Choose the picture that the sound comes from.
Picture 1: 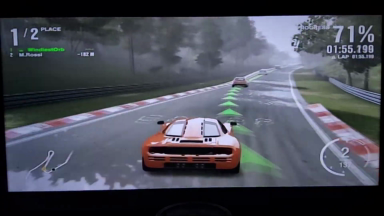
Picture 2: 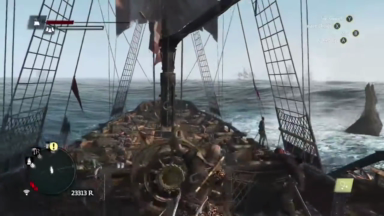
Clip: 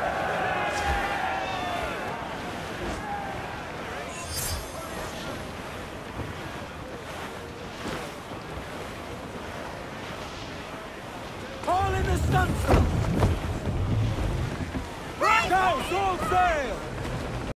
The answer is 2